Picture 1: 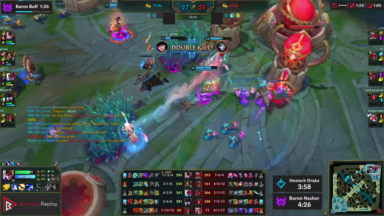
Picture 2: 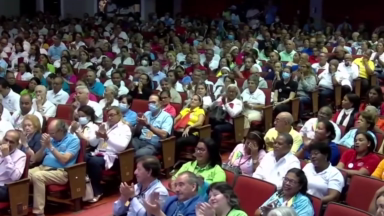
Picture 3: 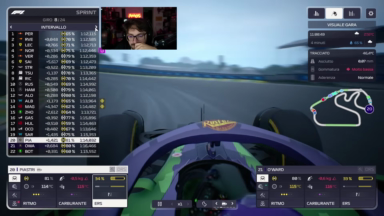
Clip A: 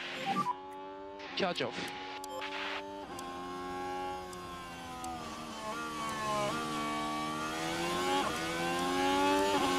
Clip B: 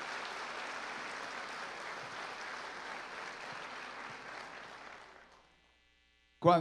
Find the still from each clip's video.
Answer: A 3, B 2